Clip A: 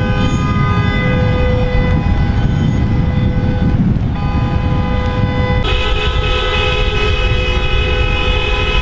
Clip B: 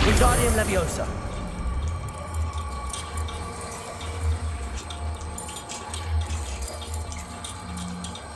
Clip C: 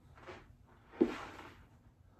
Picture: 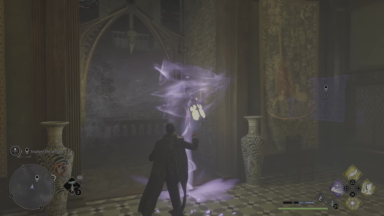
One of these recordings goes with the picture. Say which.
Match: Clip B